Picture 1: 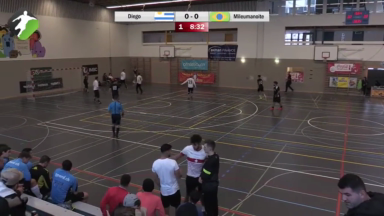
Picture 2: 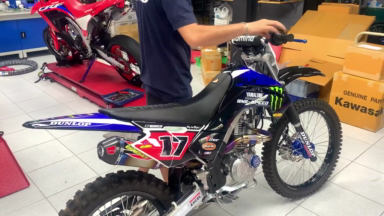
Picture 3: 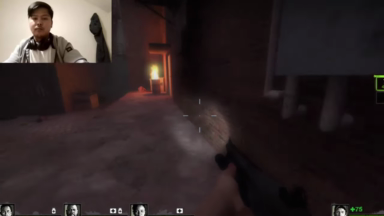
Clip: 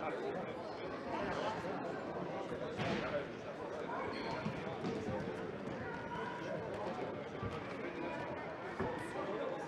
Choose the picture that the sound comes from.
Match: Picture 1